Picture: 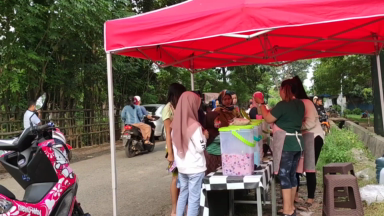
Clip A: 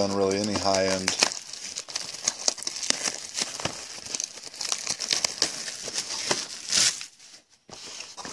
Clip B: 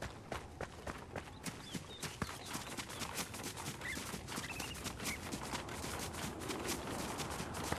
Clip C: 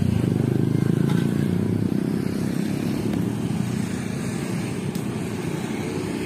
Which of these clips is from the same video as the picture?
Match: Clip C